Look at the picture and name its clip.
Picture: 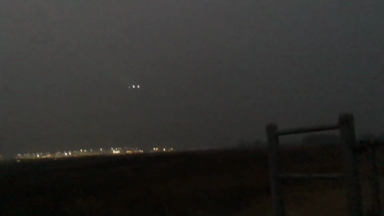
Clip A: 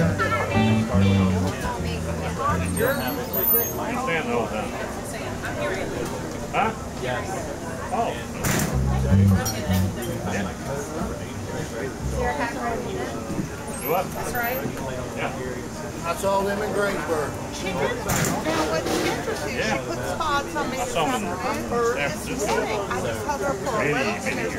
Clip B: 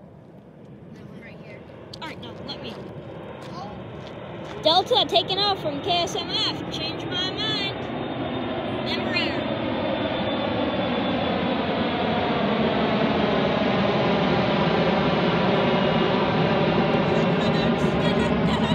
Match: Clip B